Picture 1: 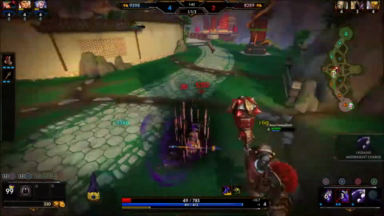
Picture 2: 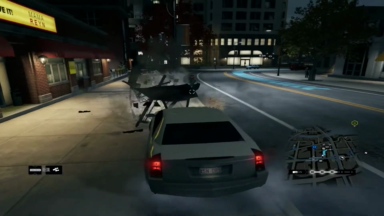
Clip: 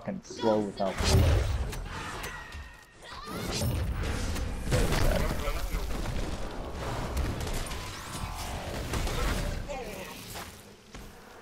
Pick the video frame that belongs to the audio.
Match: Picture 1